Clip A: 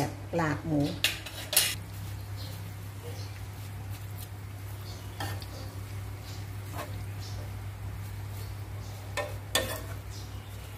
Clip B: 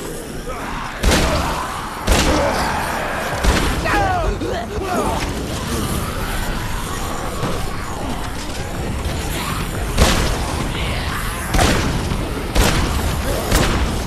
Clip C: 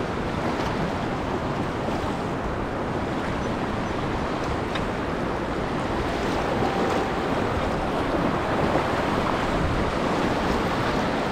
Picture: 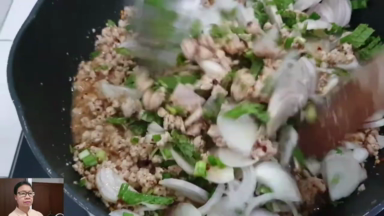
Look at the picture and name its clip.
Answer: A